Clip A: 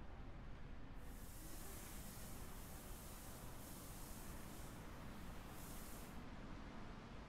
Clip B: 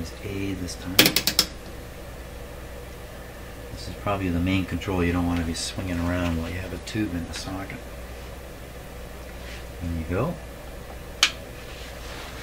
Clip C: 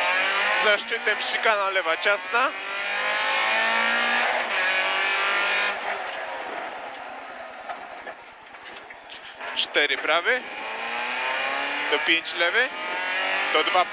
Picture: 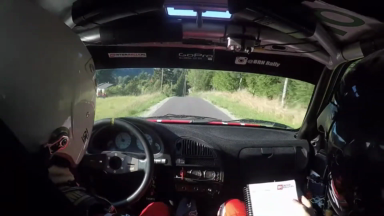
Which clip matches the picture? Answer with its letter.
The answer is C